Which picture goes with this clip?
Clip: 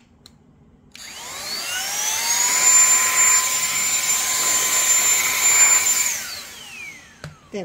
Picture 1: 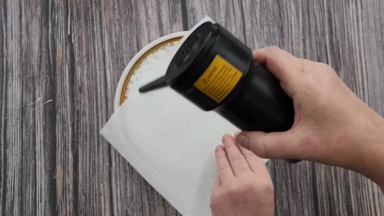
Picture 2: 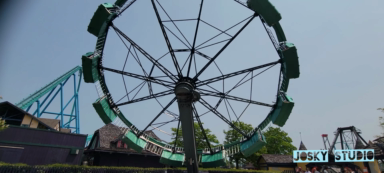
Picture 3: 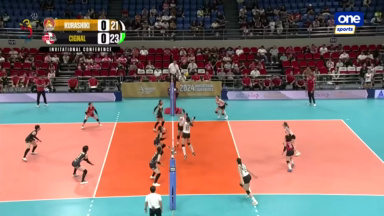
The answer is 1